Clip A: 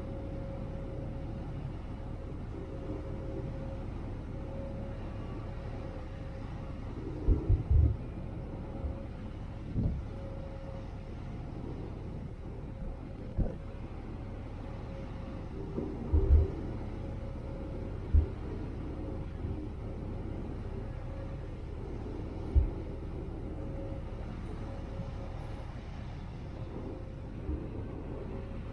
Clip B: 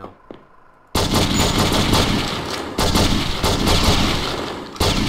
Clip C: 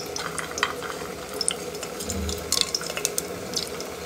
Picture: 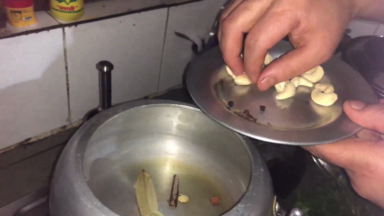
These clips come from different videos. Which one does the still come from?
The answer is C